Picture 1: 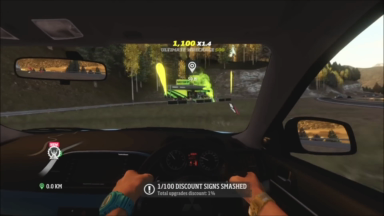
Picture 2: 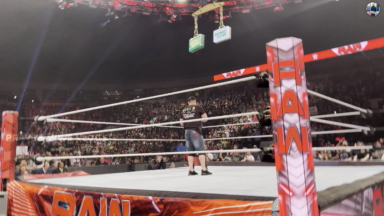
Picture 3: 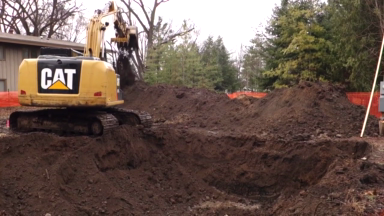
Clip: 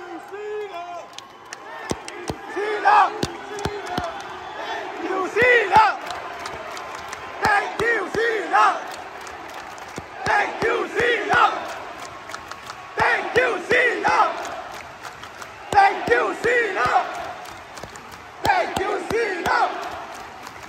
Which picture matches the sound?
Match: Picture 2